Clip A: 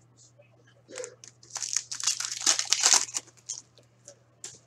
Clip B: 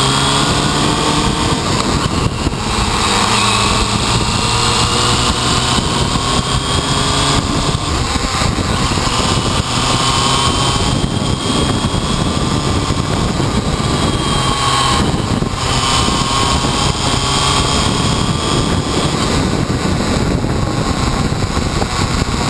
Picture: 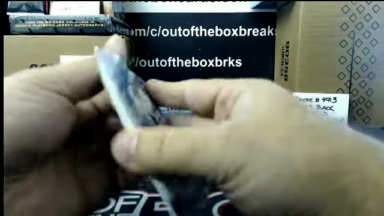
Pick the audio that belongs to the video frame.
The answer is A